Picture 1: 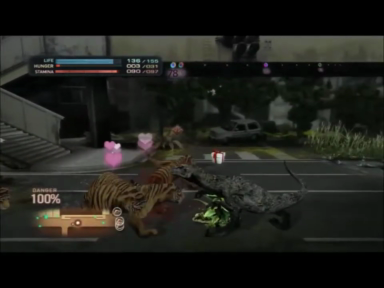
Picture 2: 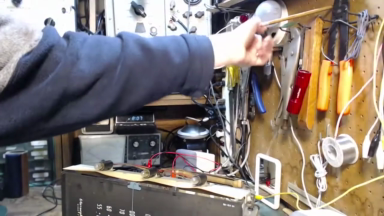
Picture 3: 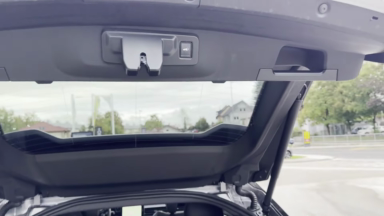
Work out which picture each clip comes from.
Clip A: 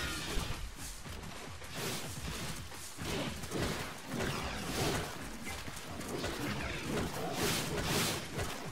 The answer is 1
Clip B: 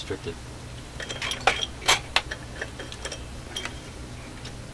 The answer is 2